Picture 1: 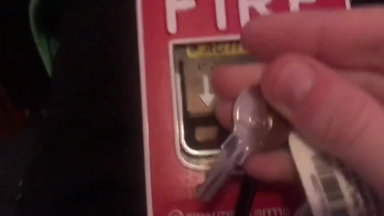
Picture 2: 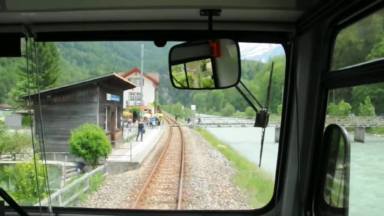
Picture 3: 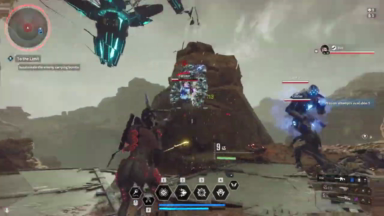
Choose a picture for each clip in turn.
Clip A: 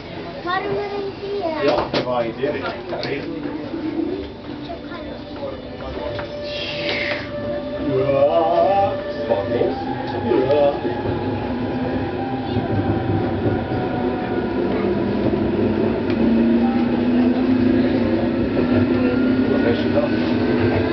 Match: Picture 2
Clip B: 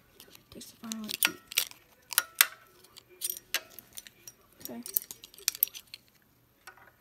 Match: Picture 1